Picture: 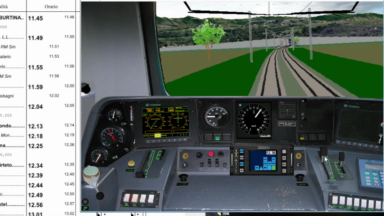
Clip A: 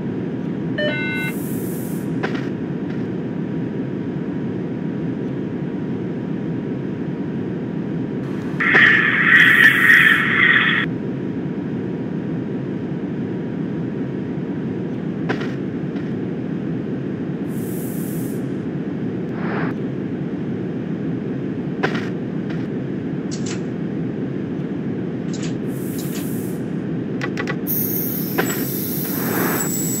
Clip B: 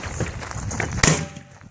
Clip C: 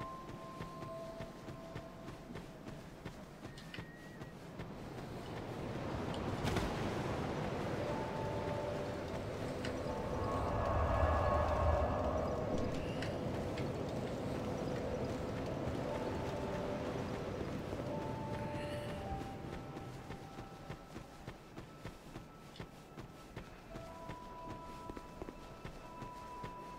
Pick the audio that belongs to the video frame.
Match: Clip A